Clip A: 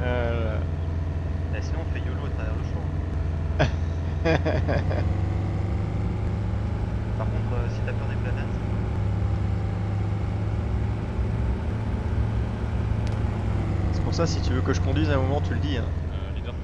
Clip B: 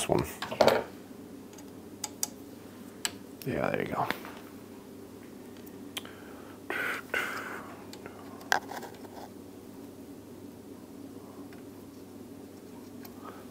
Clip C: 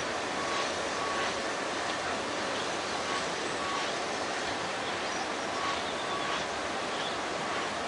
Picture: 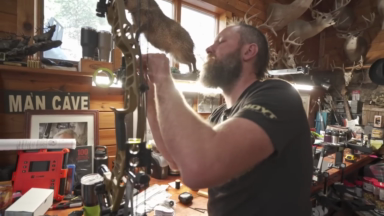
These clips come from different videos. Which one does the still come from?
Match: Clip B